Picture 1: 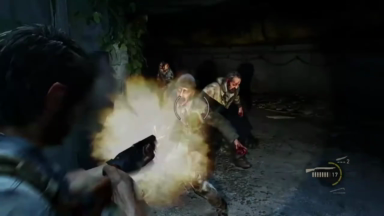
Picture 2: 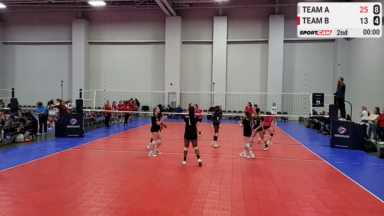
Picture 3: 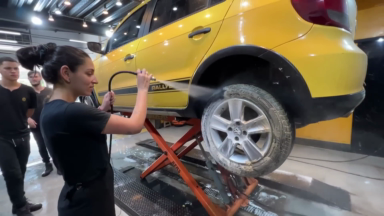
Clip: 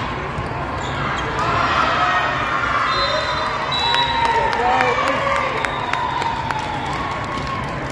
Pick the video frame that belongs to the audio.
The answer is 2